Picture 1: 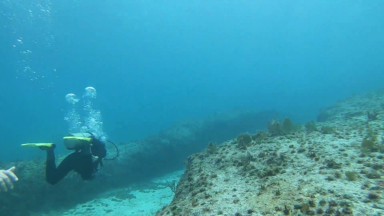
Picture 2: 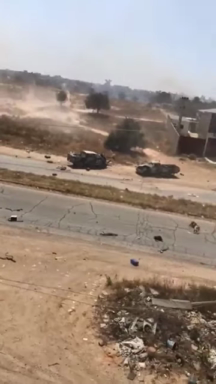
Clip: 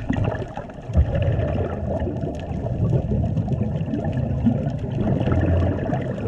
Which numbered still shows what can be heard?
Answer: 1